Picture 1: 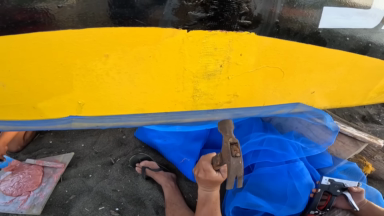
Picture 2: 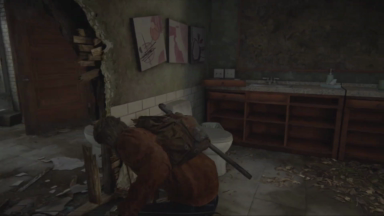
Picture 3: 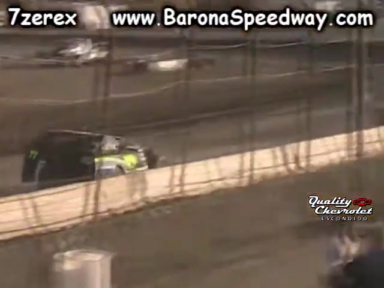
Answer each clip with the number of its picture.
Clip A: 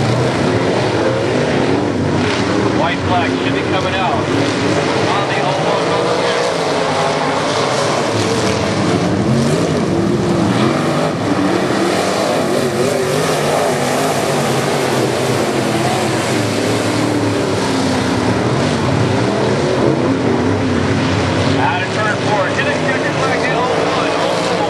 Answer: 3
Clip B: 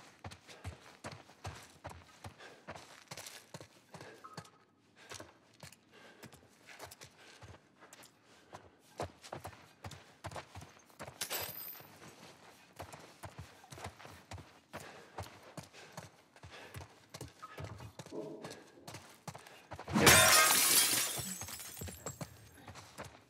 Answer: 2